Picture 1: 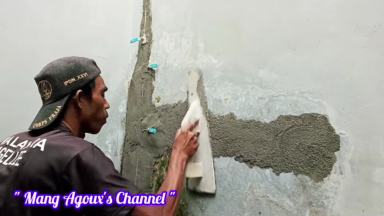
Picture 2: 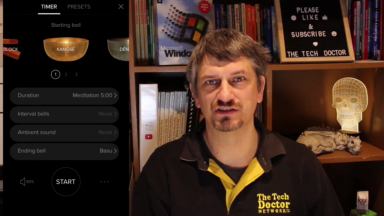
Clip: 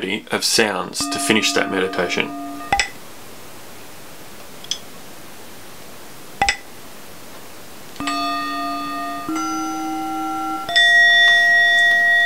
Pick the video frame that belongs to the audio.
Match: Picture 2